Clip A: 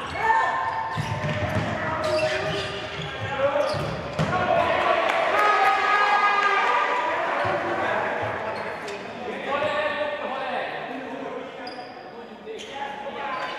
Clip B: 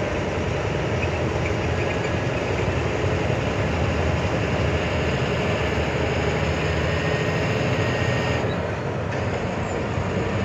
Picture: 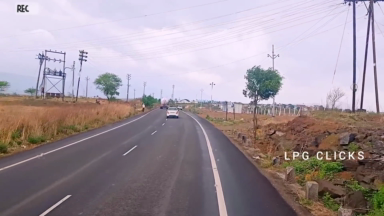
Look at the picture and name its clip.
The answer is B